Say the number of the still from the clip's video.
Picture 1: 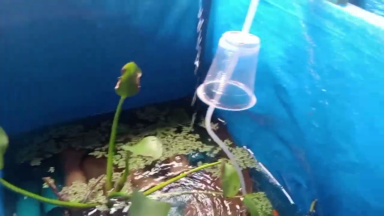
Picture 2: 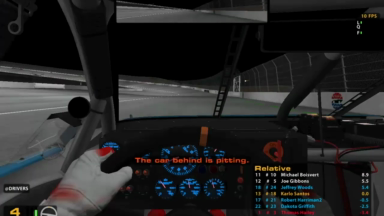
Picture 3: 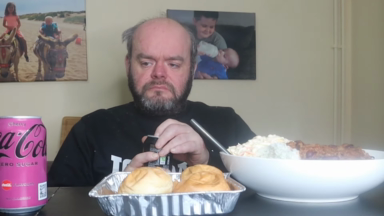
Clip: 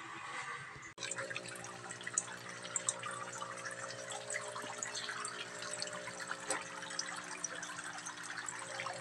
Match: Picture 1